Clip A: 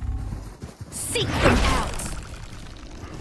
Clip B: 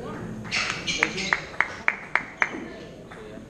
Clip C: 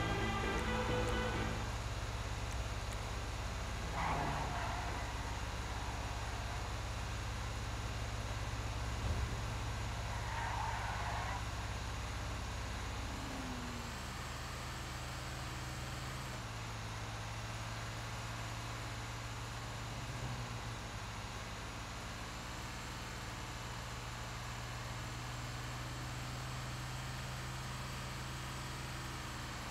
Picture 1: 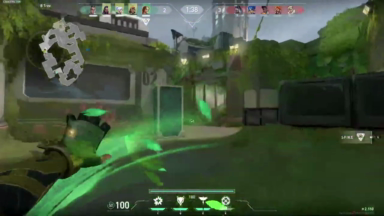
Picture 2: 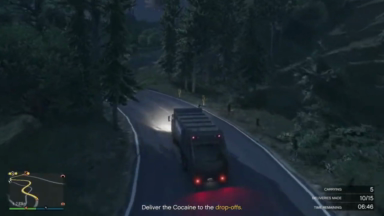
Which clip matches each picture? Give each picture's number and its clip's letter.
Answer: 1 A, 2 C